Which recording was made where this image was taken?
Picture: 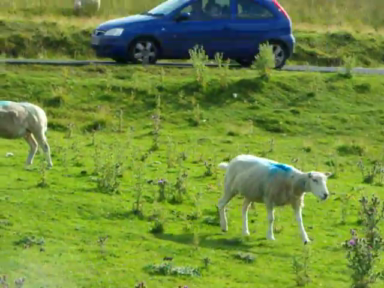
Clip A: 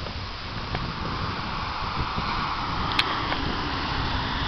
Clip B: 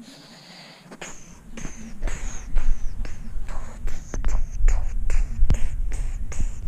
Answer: A